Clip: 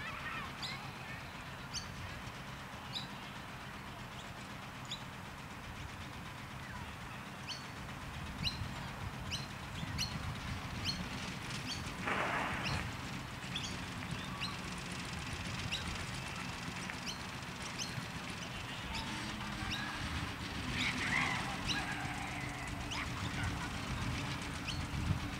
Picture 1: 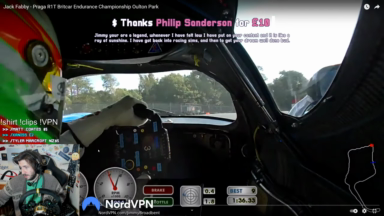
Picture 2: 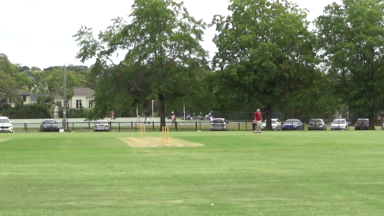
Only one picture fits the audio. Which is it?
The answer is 2